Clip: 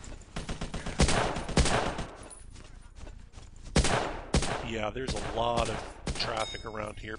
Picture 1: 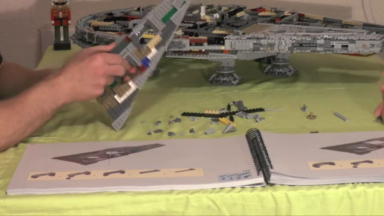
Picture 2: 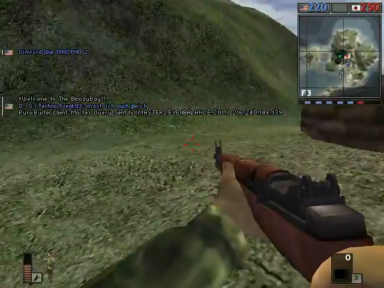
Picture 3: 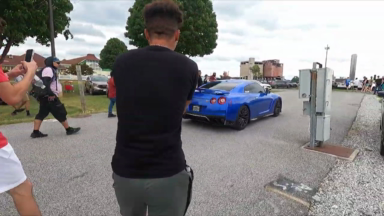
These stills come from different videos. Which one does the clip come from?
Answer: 2